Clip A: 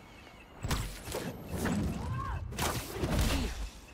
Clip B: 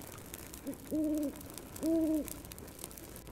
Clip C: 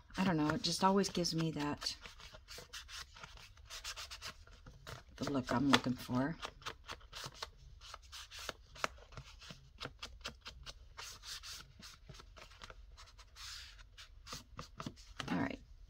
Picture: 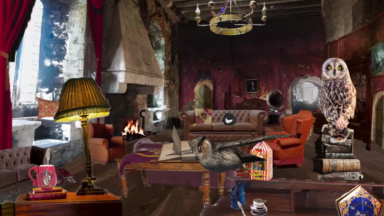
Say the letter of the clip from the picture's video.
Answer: B